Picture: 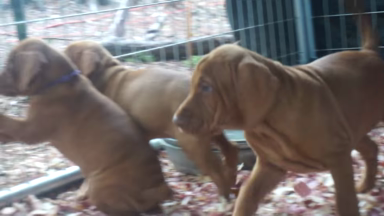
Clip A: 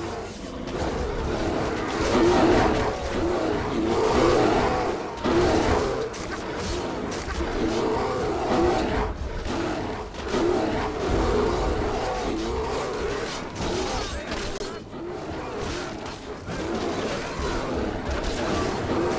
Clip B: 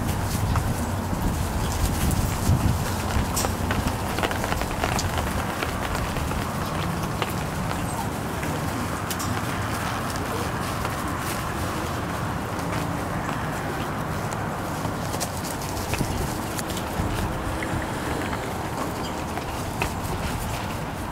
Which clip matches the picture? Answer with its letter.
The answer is B